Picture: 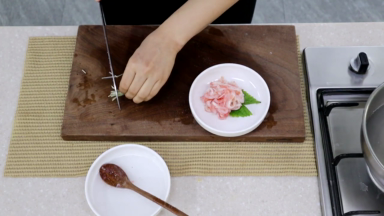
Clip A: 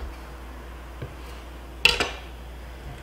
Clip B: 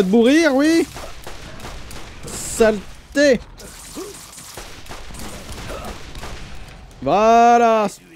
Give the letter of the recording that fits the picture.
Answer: A